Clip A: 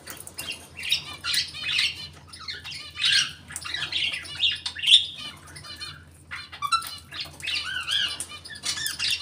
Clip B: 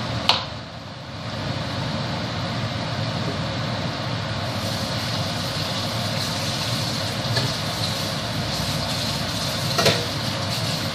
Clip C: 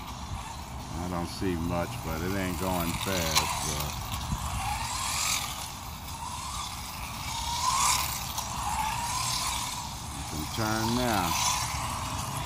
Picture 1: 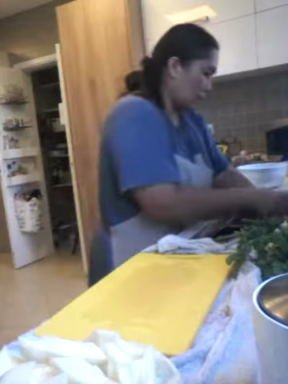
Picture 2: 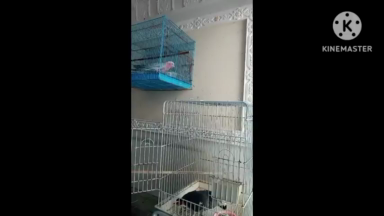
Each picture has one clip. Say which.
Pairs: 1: B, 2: A